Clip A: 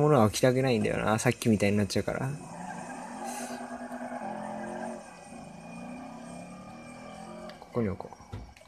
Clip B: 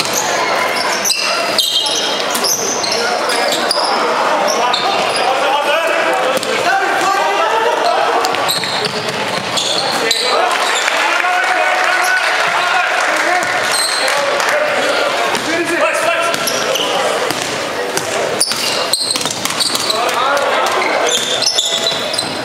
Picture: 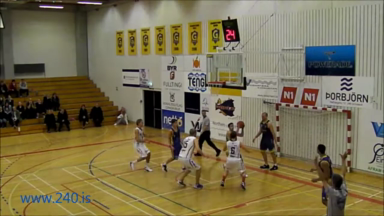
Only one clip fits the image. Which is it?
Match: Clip B